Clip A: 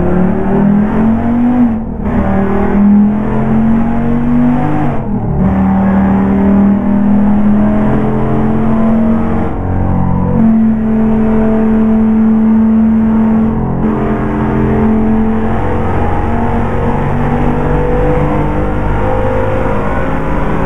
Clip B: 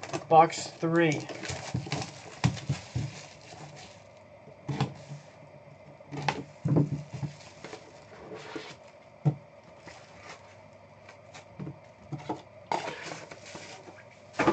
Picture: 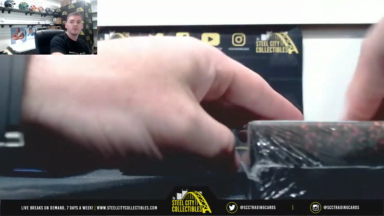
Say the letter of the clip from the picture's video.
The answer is B